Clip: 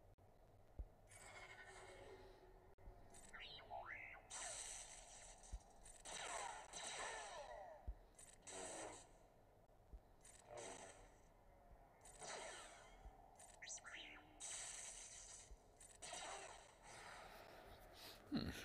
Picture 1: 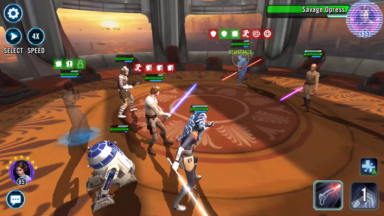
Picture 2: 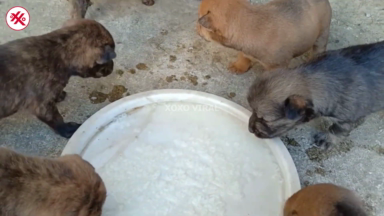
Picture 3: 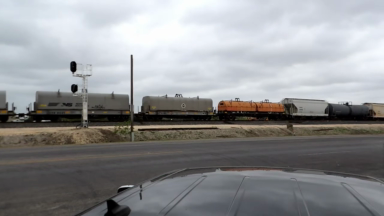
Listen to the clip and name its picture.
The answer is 1